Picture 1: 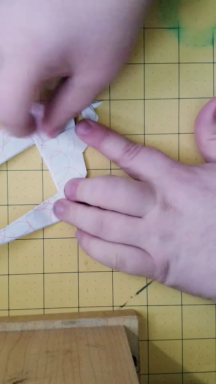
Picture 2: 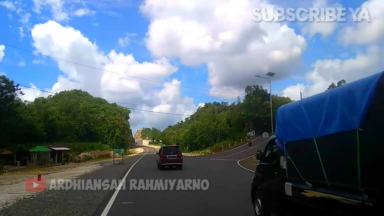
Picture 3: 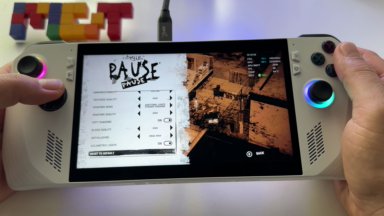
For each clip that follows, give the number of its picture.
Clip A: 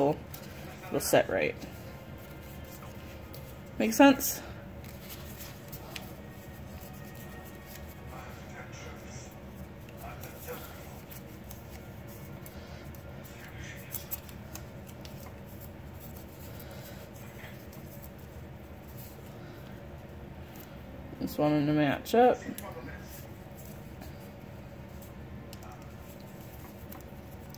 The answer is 1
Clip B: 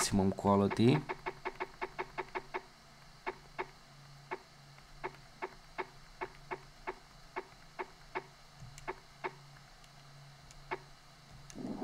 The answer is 3